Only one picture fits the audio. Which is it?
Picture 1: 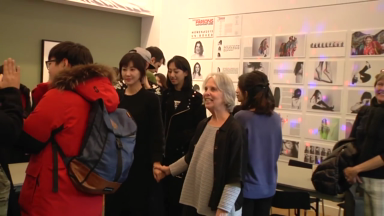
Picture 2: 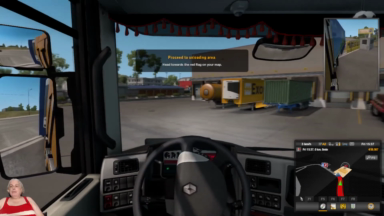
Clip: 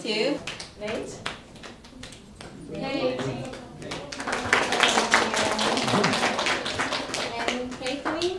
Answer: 1